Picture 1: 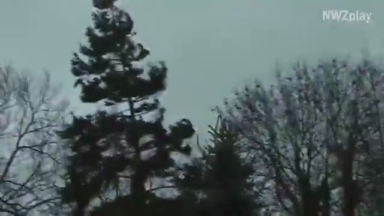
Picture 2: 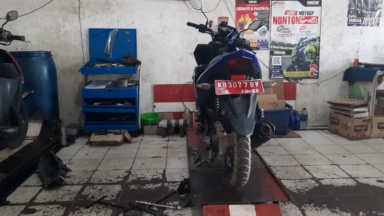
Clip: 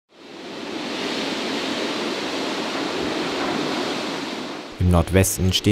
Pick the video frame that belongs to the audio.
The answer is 1